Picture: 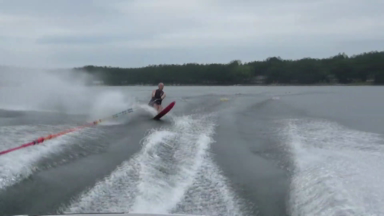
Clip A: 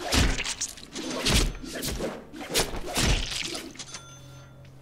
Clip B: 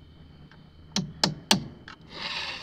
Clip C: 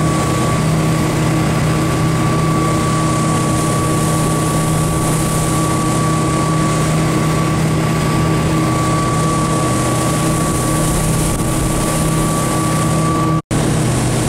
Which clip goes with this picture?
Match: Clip C